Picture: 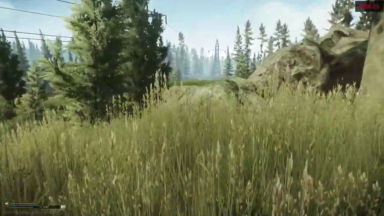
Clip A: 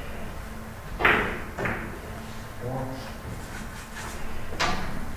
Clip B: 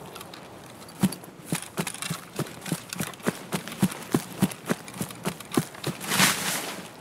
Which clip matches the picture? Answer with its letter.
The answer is B